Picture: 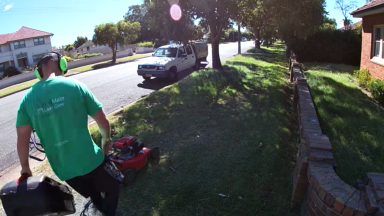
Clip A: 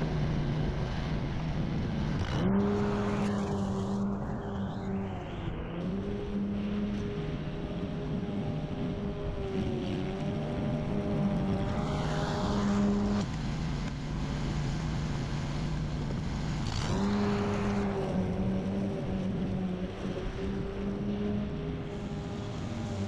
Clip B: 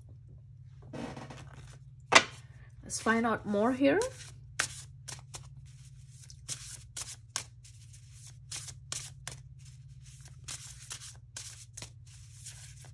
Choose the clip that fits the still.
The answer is A